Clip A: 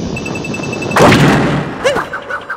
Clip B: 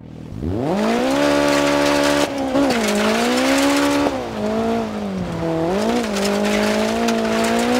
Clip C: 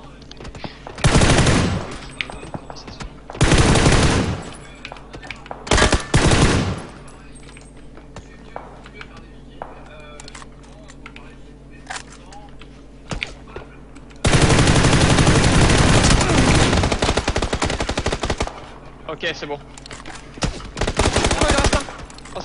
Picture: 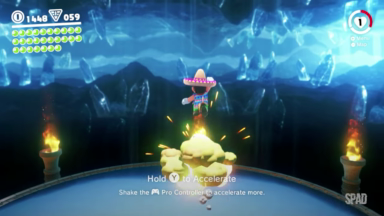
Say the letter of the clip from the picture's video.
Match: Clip A